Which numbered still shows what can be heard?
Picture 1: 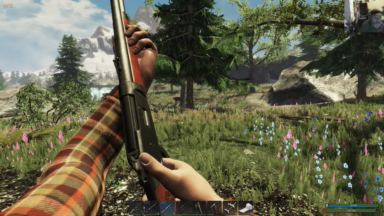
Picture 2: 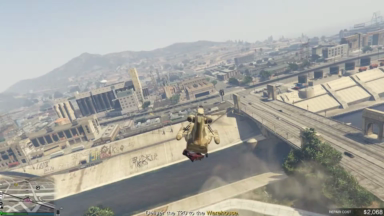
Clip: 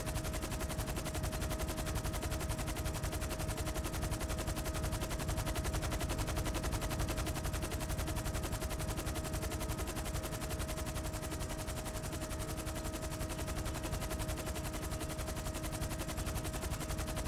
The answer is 2